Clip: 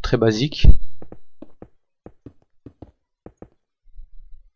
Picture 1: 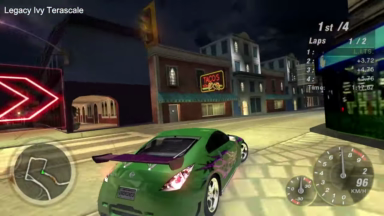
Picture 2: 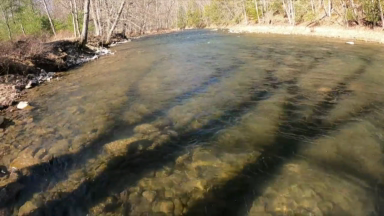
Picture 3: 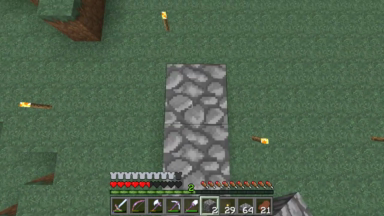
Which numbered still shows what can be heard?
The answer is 3